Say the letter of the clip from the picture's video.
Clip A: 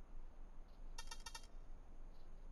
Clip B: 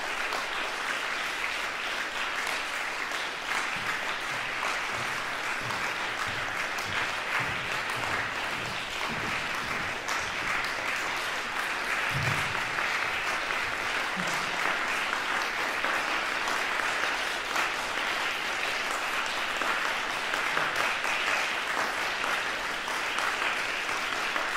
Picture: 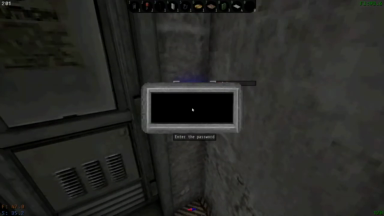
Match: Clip A